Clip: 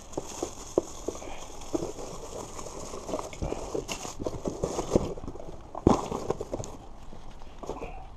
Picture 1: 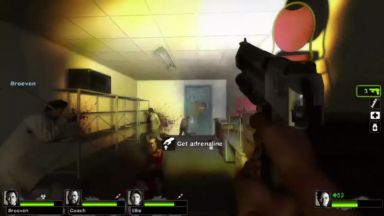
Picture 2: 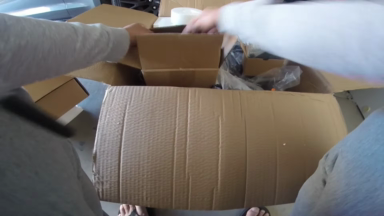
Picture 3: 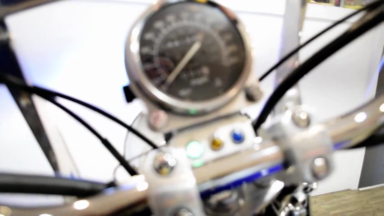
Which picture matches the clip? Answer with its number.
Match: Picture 2